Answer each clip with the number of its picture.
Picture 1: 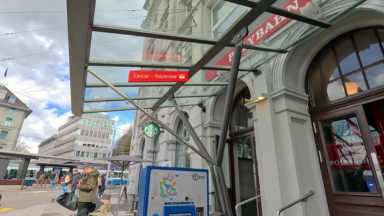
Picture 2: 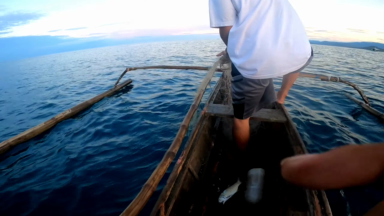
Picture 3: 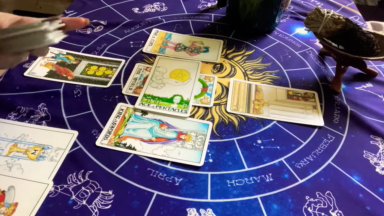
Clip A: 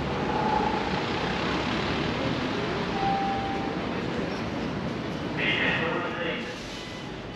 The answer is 1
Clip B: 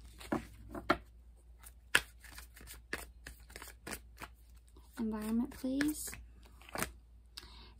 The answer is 3